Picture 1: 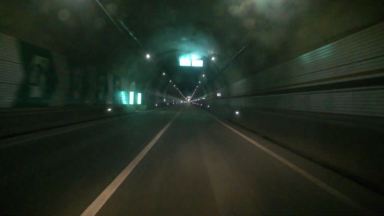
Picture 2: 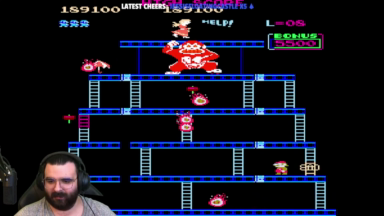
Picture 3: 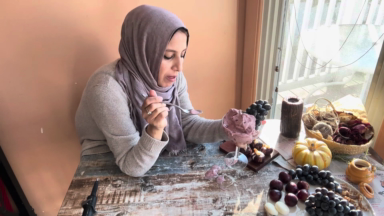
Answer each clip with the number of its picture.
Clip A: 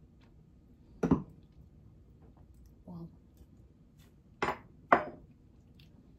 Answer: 3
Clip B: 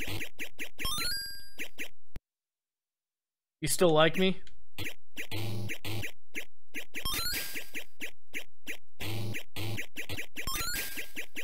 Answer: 2